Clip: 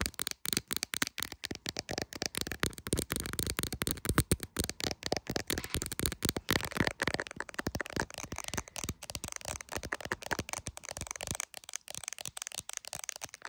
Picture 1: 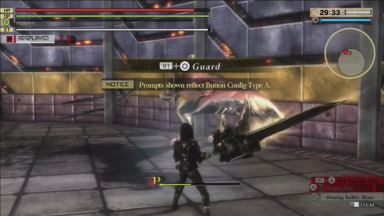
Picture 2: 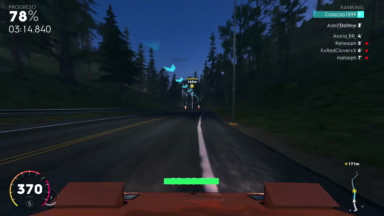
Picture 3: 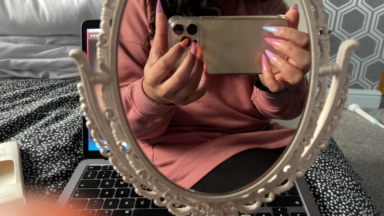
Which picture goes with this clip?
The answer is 3